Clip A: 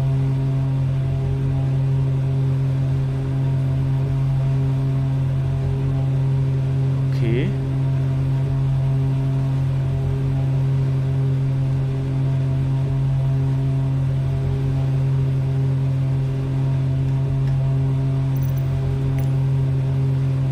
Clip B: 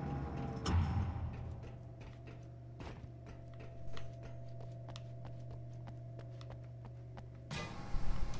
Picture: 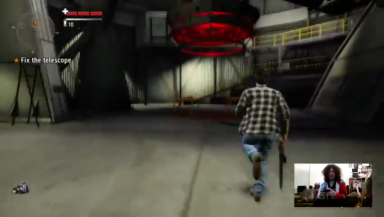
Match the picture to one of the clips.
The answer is B